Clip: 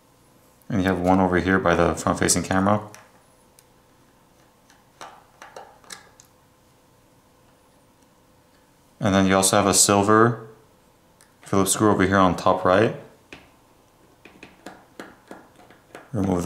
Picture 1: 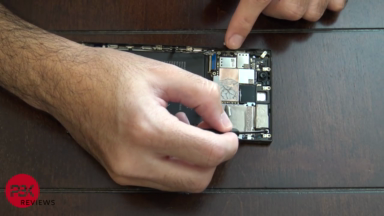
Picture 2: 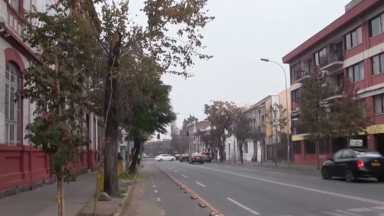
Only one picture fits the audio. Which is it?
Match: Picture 1